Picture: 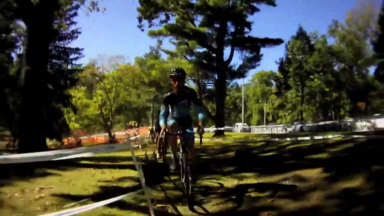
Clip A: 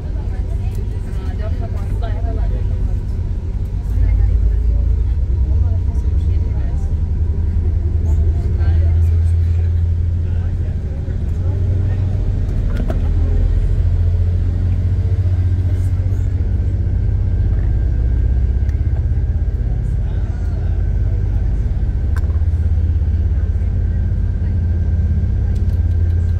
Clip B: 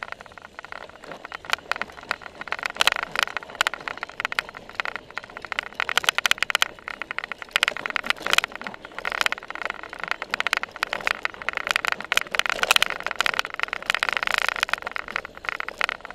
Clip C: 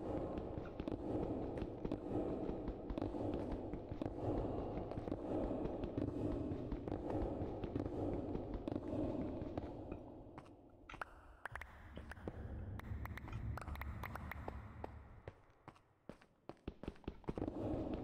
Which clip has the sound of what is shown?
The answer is B